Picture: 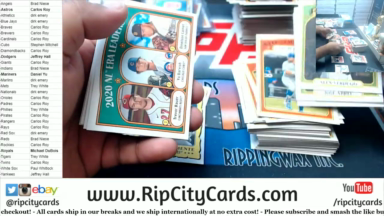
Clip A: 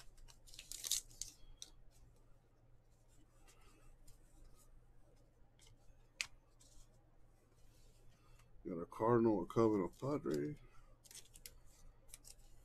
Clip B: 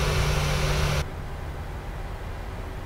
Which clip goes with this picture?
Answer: A